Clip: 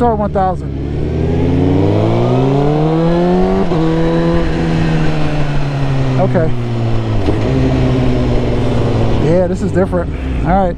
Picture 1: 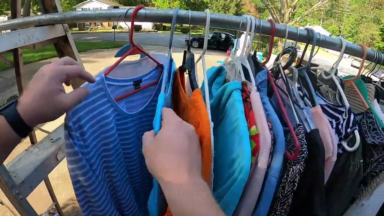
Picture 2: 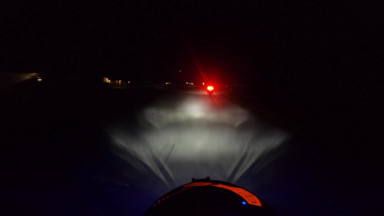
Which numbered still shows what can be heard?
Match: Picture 2